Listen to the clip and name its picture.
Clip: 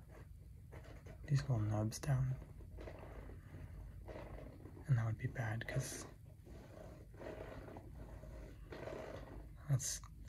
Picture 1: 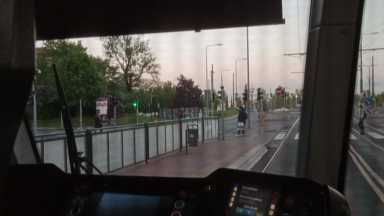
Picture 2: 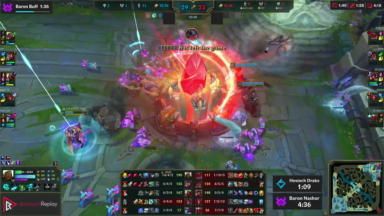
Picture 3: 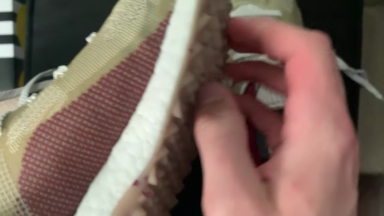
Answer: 3